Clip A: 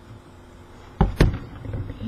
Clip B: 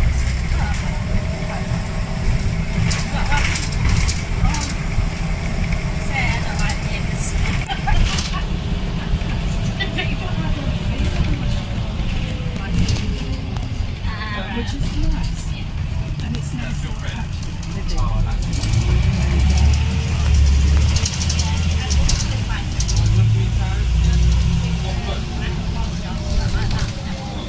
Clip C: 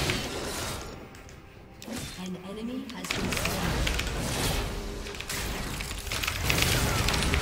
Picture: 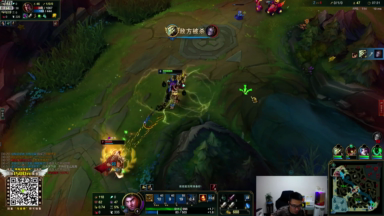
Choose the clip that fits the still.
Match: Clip C